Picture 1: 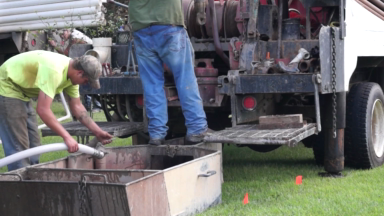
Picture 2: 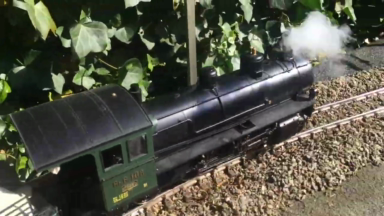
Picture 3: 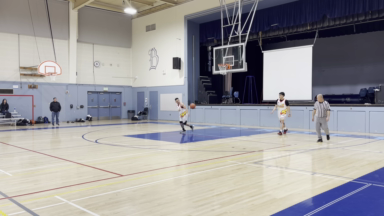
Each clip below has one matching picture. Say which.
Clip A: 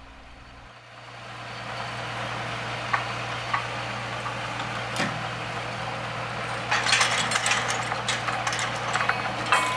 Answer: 1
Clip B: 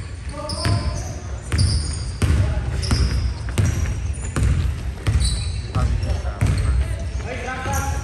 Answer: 3